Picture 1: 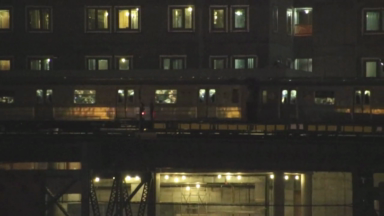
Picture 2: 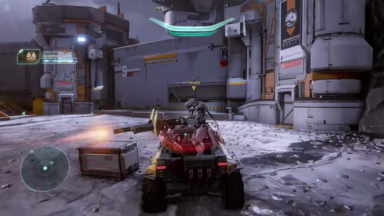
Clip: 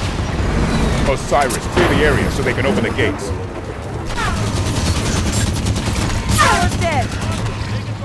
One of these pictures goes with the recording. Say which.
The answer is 2